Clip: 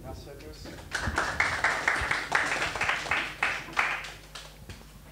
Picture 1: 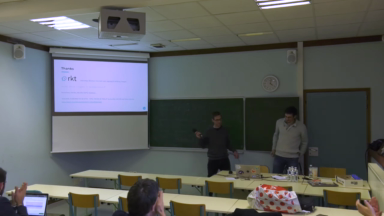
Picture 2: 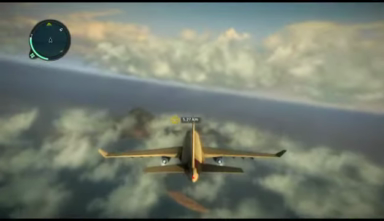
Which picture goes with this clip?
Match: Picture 1